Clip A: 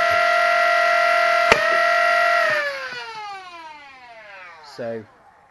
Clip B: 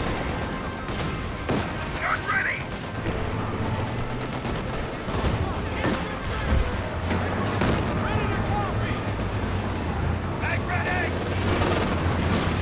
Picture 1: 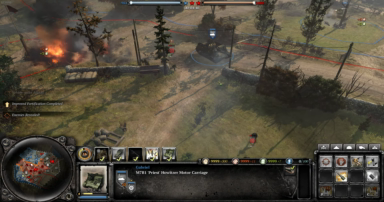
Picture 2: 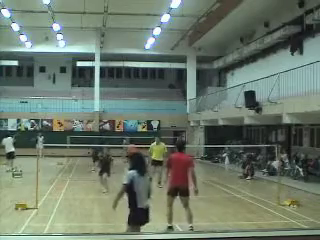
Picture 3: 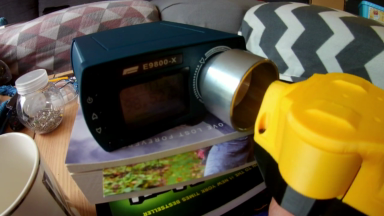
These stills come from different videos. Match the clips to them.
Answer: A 3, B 1